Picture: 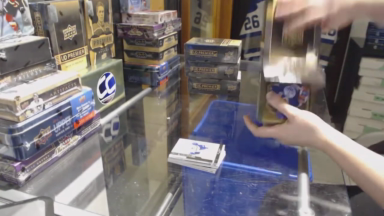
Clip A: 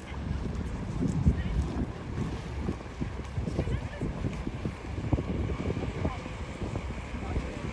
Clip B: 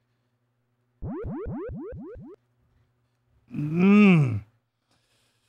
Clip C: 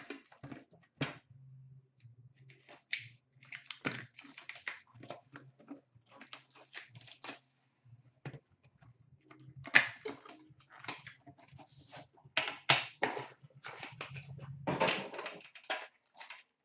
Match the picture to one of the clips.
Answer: C